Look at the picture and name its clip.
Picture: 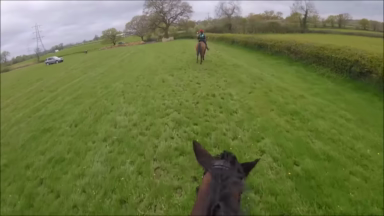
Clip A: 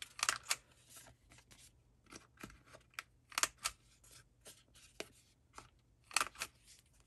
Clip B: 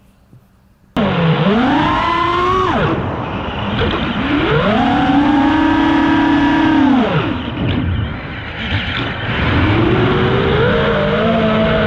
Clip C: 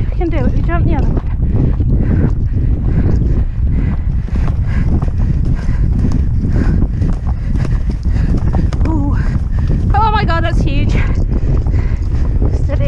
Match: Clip C